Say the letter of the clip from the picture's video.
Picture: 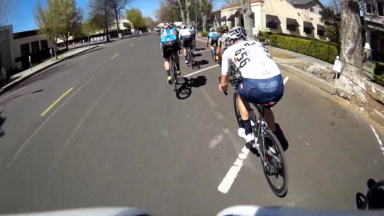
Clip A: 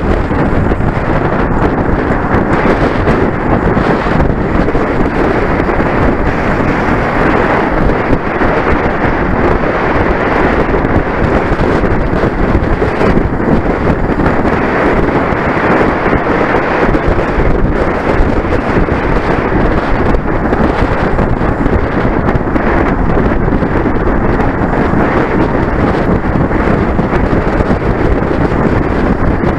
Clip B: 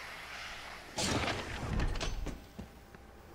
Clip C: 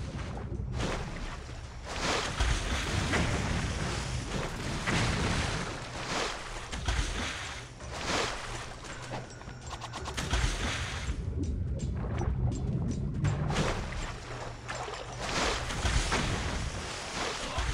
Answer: A